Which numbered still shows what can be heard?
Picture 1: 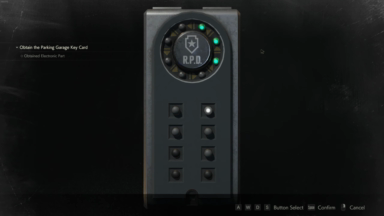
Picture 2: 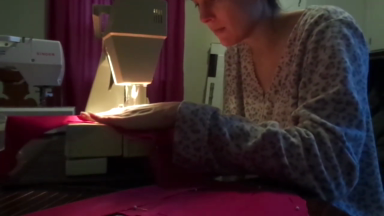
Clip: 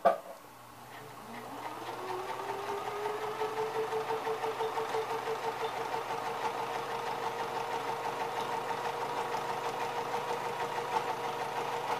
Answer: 2